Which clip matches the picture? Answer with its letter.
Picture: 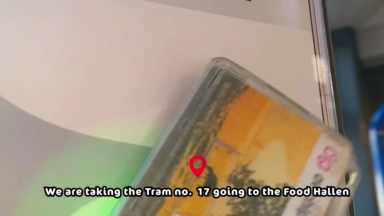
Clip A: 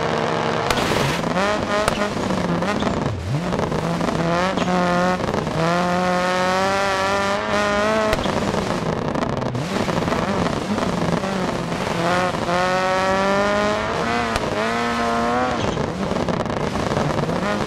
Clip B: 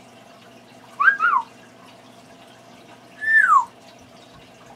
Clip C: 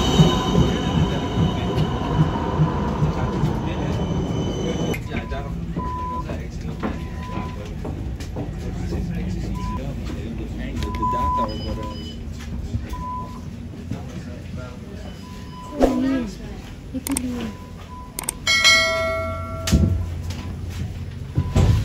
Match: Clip C